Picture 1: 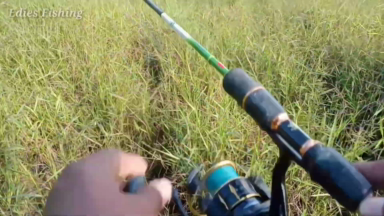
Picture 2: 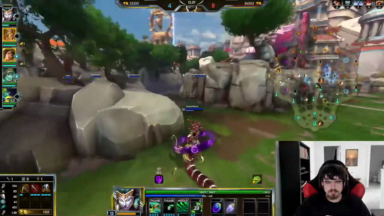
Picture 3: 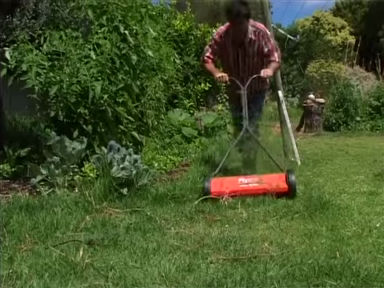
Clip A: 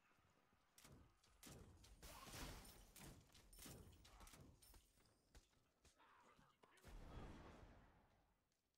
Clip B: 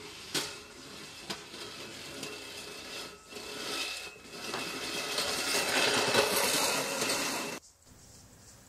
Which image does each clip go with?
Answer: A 2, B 3